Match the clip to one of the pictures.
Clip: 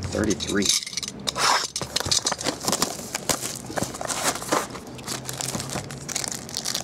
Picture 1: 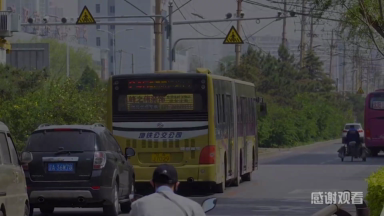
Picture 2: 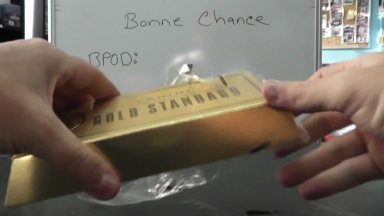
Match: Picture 2